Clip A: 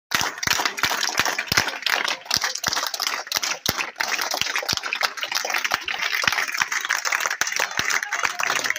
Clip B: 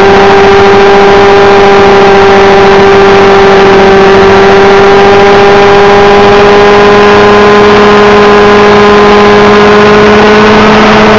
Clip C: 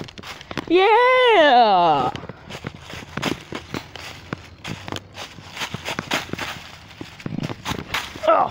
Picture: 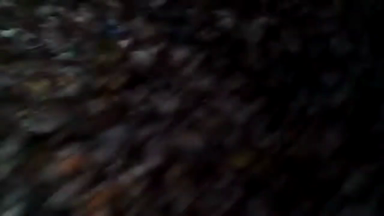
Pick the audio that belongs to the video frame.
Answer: C